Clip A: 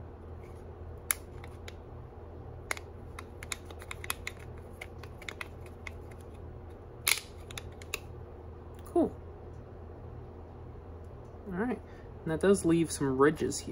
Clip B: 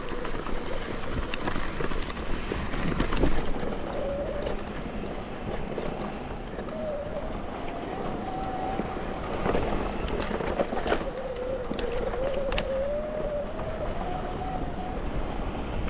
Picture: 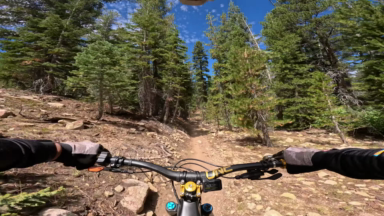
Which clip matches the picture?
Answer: B